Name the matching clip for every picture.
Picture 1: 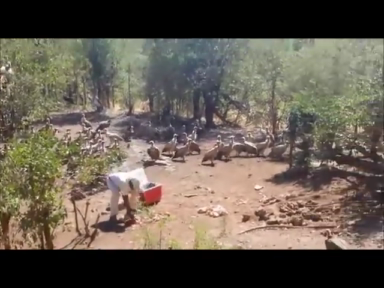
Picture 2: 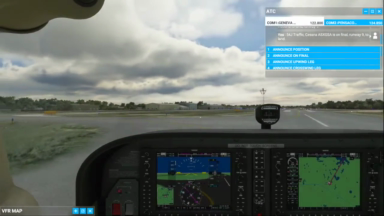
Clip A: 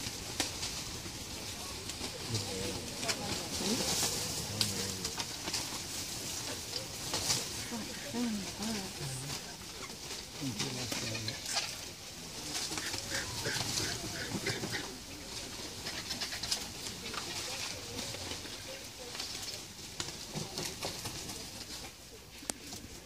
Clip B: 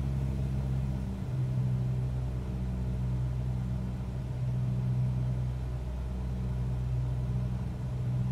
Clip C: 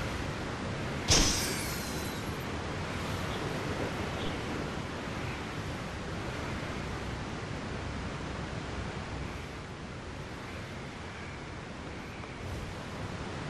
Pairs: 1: A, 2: B